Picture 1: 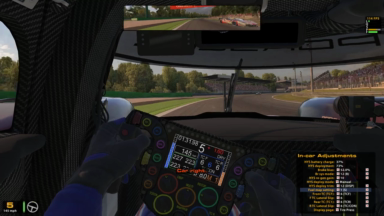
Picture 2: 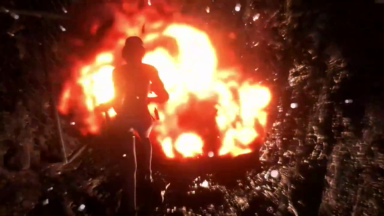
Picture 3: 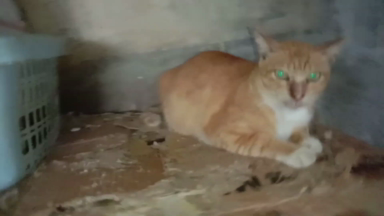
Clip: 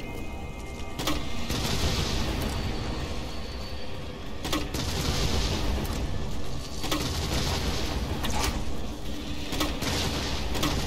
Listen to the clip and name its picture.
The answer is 2